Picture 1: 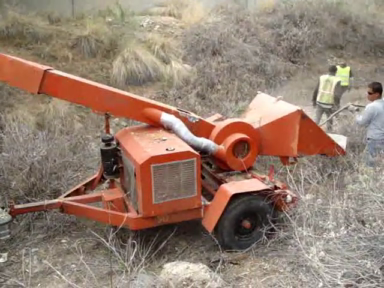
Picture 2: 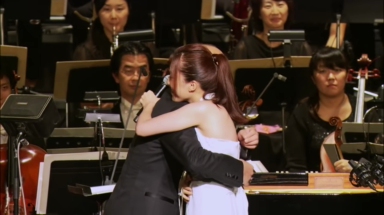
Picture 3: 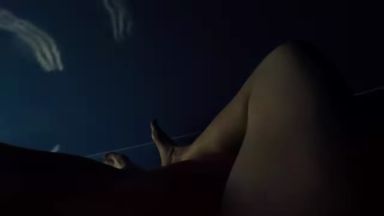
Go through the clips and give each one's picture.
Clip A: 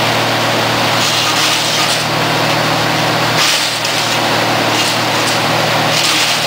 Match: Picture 1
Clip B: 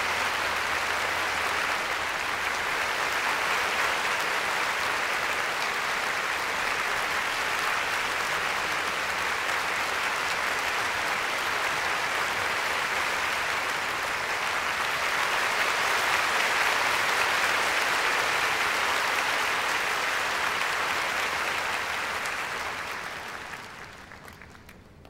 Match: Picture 2